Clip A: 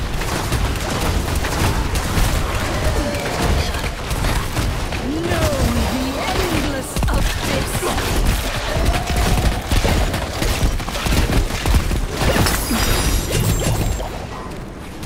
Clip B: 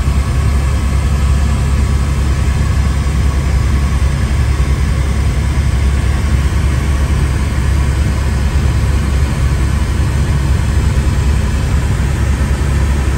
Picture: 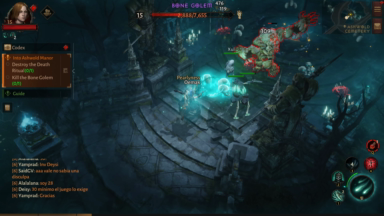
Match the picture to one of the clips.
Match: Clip A